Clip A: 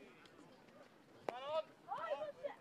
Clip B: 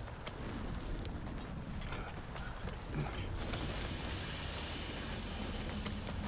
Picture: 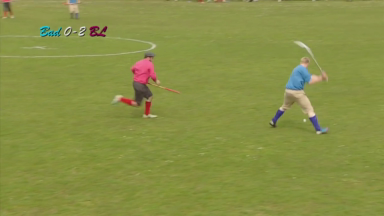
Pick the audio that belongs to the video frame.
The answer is A